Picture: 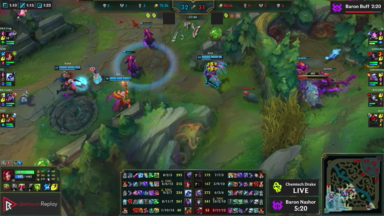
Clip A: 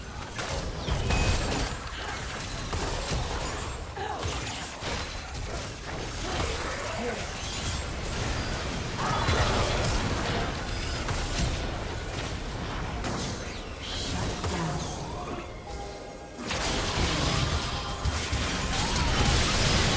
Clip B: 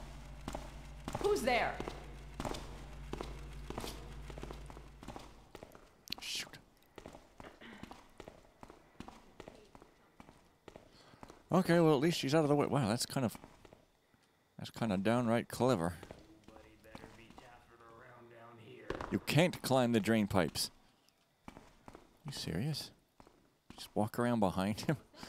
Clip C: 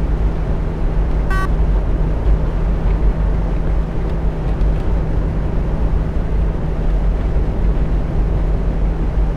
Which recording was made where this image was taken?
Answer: A